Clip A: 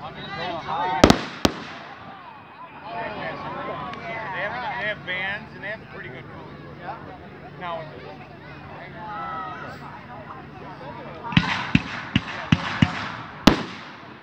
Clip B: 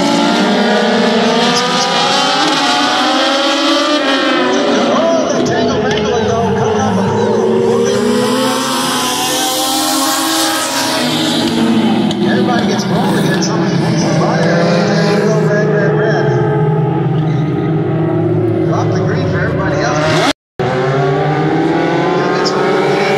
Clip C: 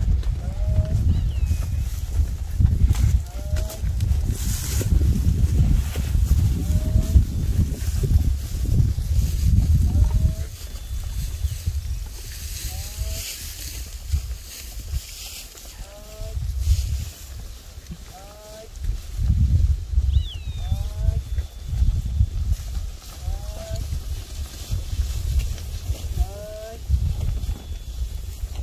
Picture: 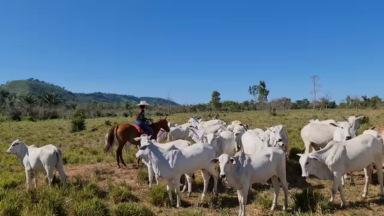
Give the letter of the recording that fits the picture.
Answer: C